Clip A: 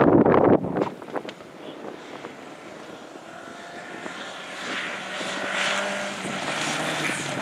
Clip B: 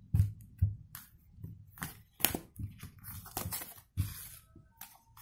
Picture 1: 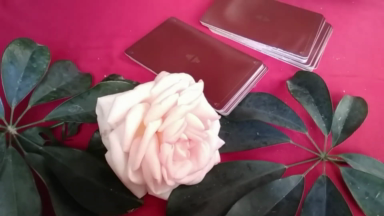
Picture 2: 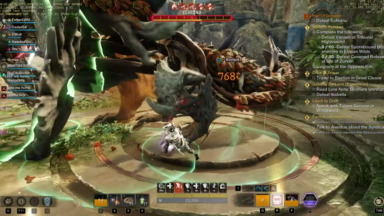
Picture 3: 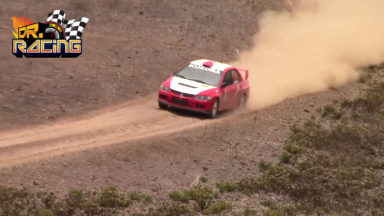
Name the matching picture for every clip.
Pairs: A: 3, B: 1